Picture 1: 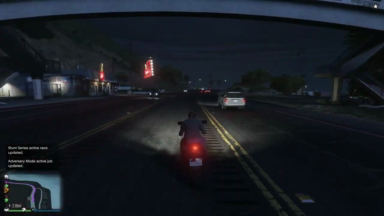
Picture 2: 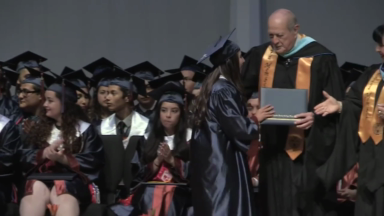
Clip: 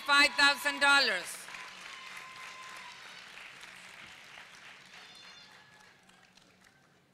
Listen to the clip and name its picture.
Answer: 2